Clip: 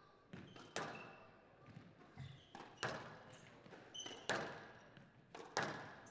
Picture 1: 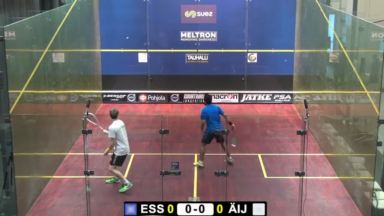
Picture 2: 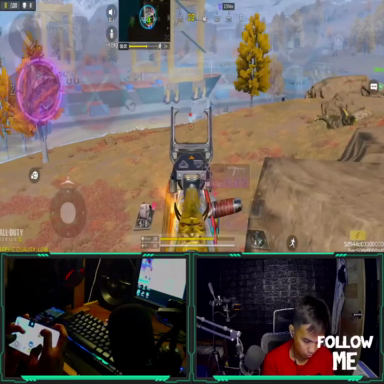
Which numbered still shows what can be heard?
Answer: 1